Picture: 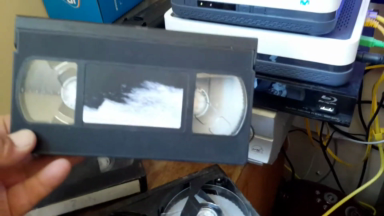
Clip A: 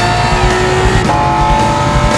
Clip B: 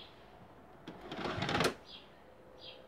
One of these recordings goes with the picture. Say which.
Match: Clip B